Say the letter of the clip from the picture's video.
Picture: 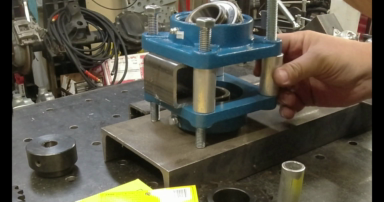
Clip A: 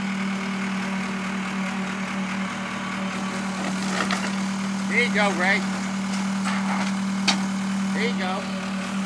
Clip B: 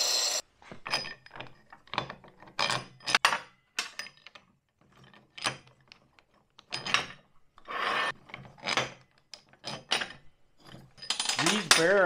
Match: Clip B